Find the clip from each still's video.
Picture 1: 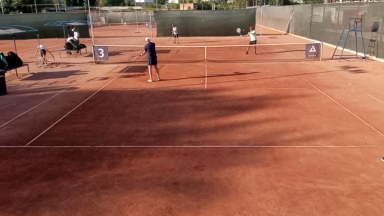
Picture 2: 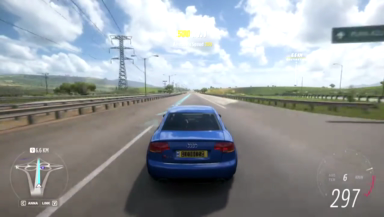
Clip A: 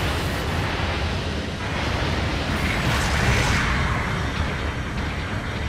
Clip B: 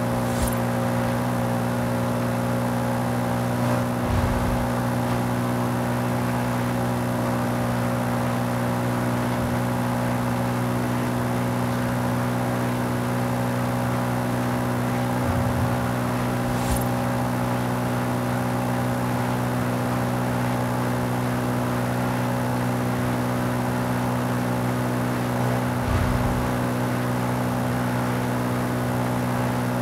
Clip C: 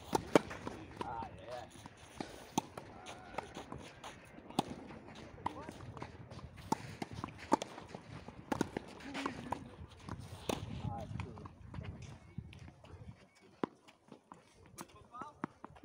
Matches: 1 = C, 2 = B